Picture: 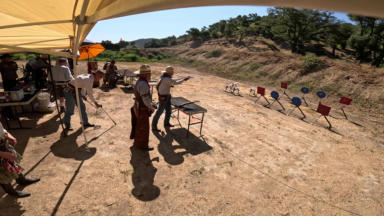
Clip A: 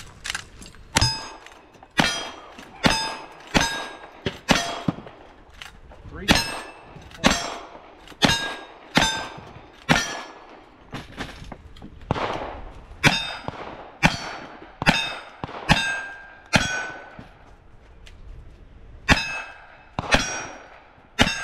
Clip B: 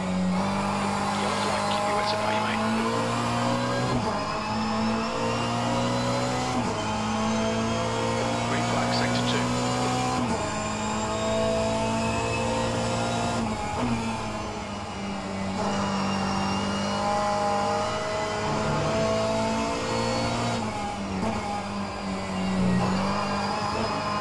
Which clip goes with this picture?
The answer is A